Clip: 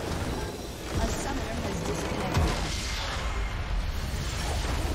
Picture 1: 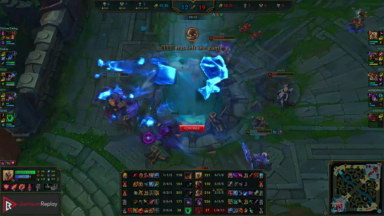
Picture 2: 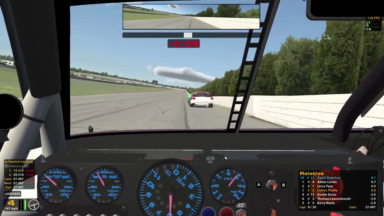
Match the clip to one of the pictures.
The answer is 1